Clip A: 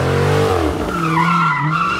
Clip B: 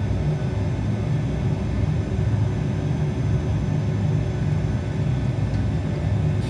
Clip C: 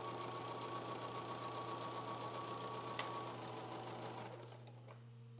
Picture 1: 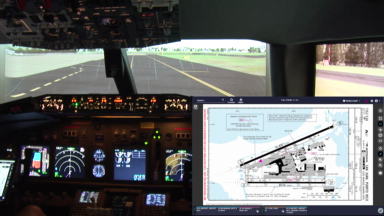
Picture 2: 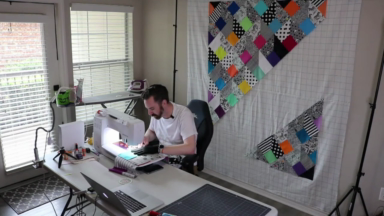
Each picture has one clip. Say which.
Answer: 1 B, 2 C